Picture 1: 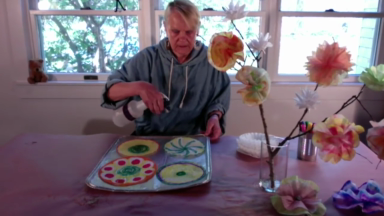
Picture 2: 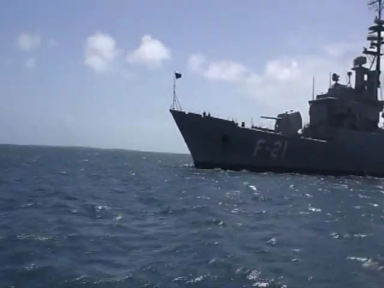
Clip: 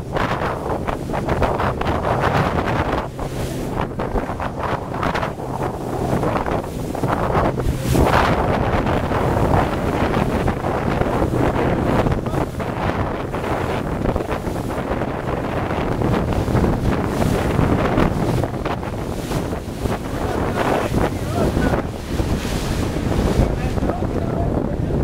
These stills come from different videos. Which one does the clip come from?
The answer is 2